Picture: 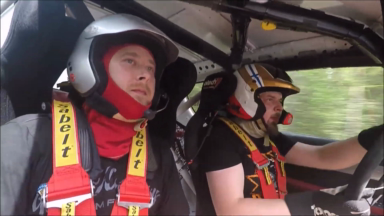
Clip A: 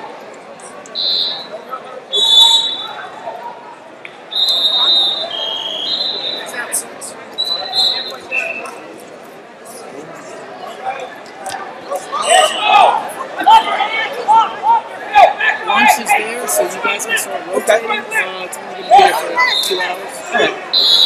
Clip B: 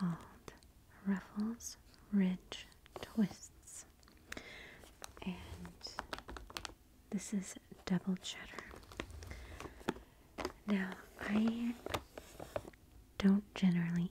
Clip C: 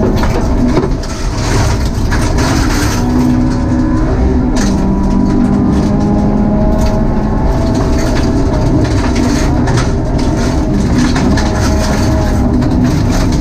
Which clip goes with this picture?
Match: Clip C